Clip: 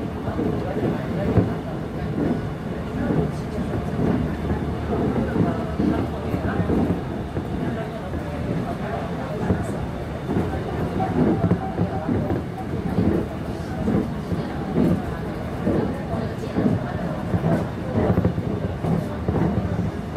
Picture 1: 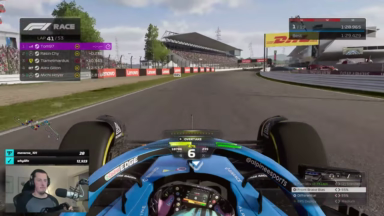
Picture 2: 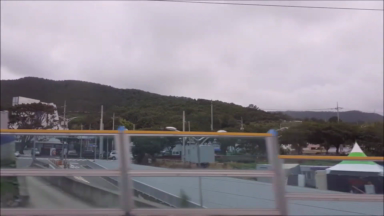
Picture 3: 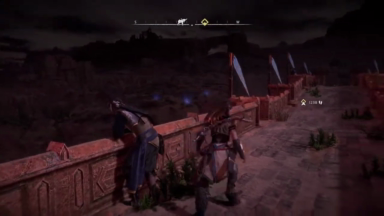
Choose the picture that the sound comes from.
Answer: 2